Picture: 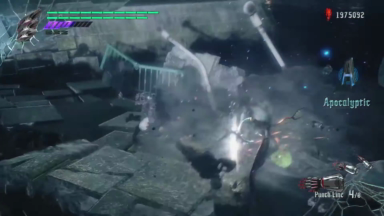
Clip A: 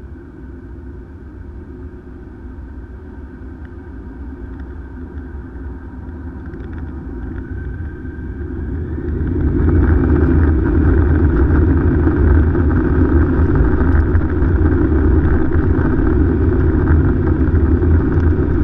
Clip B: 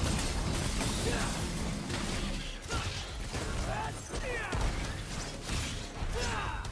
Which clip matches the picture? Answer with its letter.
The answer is B